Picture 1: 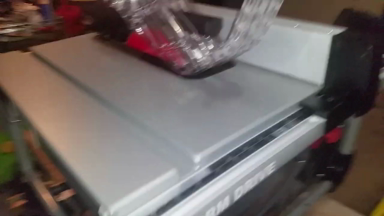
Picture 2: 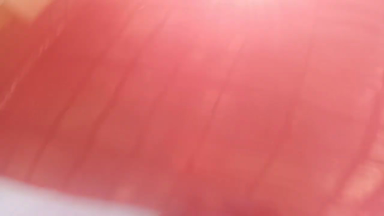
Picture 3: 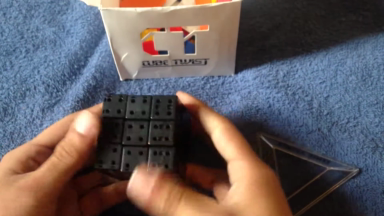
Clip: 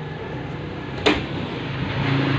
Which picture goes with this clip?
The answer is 2